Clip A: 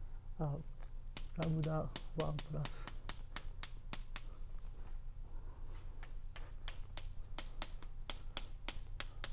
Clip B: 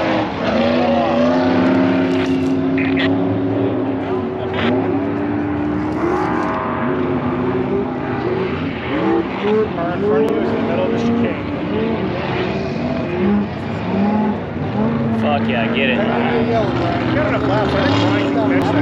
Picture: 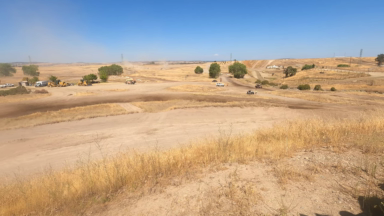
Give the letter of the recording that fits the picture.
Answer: B